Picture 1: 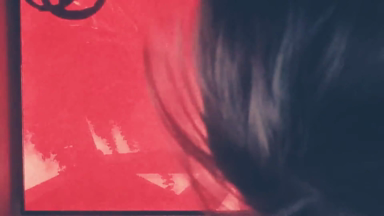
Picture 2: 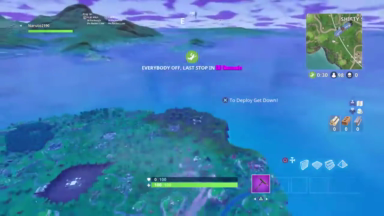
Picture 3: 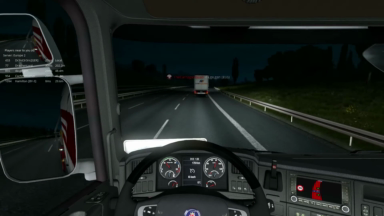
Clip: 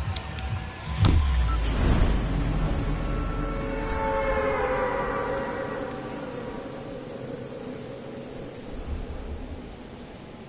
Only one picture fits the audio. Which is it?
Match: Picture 2